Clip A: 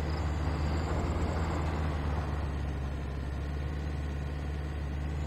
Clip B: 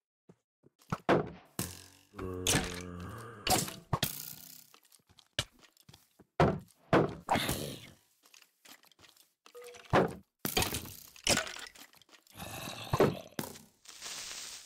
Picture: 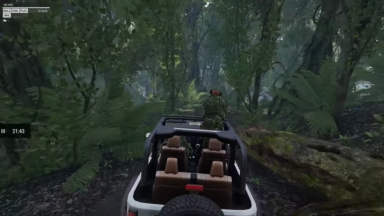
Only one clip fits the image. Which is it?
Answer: A